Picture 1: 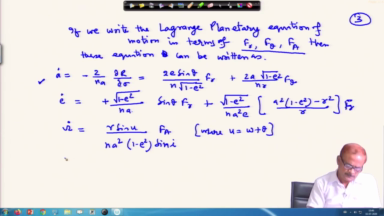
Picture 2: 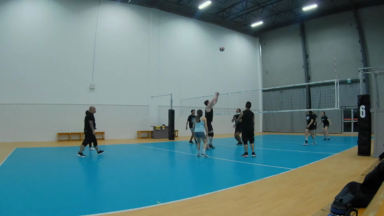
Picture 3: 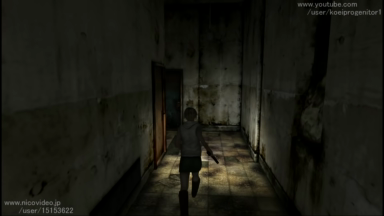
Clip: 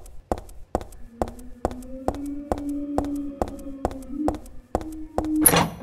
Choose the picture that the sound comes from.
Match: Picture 3